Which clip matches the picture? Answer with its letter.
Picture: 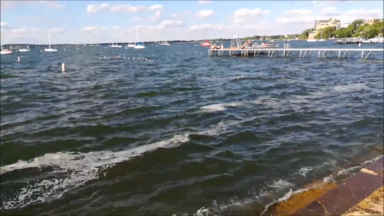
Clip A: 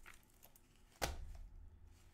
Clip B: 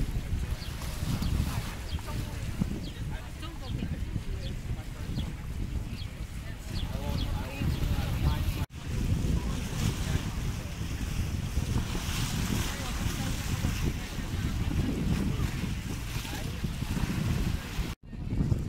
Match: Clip B